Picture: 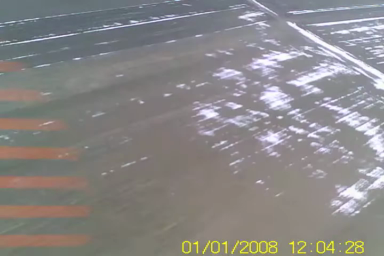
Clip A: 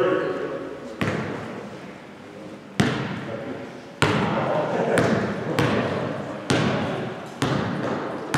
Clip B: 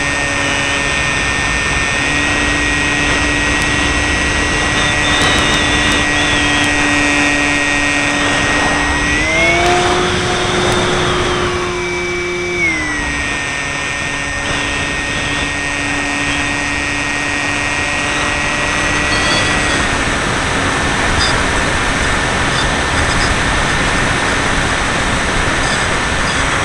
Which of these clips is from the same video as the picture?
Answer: B